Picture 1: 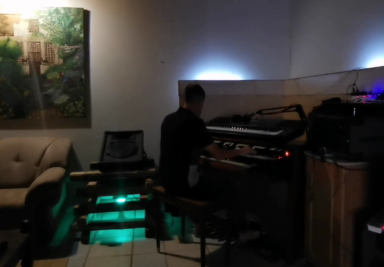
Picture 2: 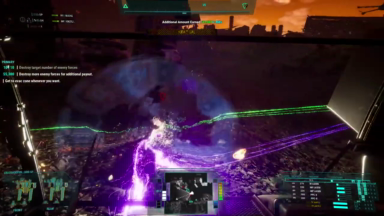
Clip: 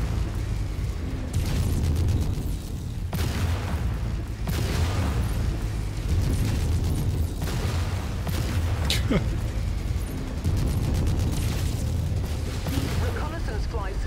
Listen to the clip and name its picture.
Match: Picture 2